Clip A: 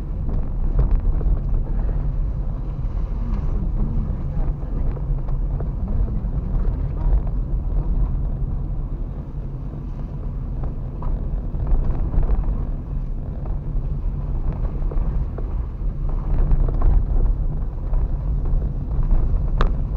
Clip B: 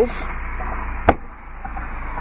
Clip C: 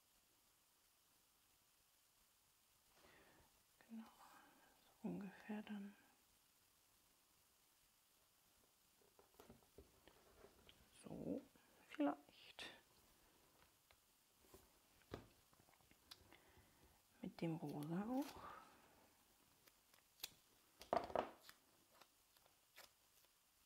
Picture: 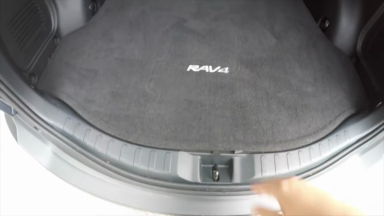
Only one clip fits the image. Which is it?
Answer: B